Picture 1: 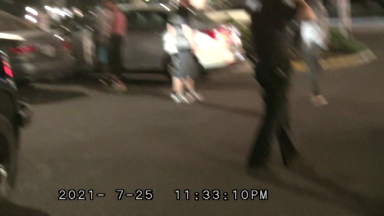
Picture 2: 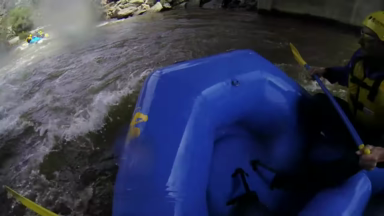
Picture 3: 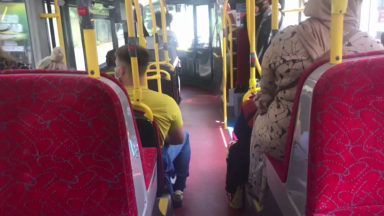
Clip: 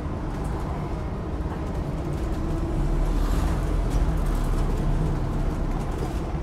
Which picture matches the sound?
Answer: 3